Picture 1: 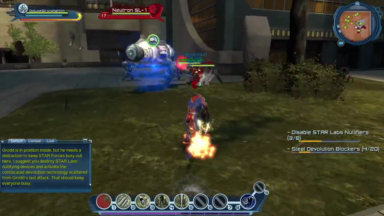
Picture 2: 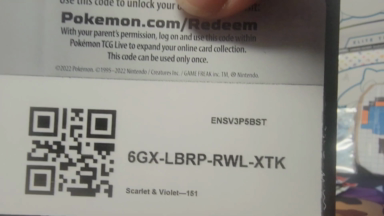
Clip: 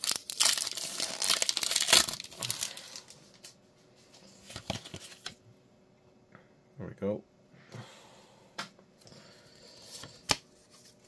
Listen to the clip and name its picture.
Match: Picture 2